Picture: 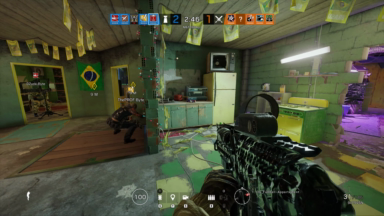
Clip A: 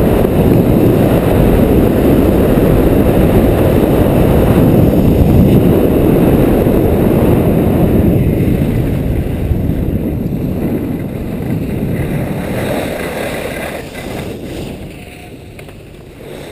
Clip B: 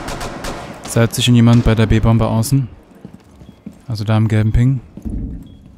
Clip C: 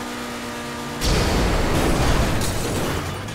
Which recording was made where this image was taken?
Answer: B